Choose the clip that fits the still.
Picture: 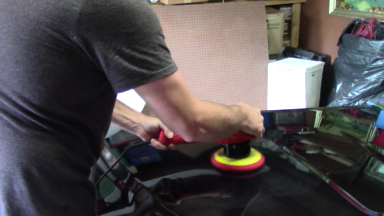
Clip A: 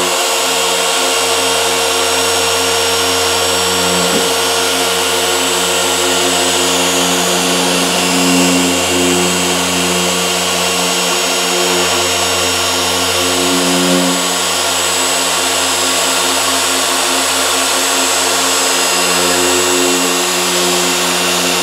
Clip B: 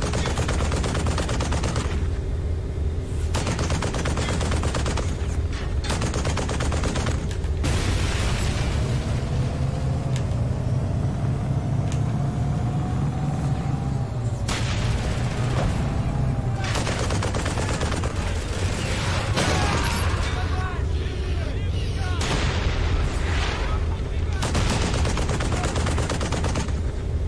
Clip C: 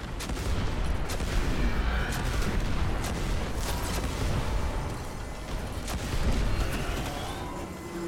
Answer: A